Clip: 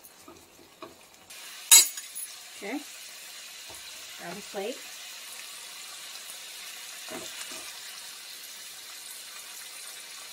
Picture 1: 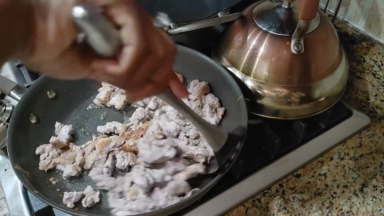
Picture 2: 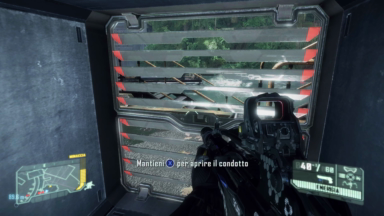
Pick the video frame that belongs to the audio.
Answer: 1